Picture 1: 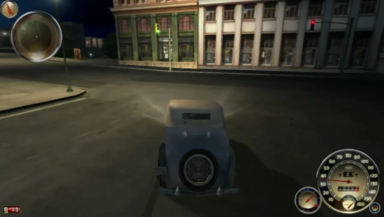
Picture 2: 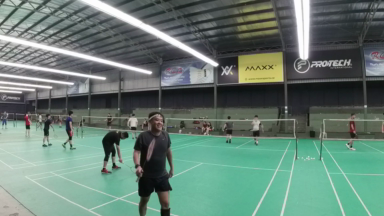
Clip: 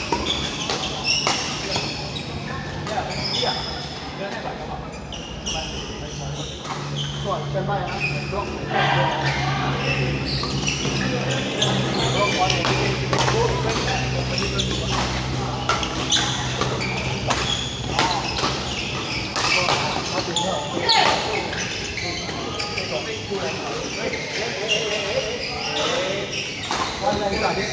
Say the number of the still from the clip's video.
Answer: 2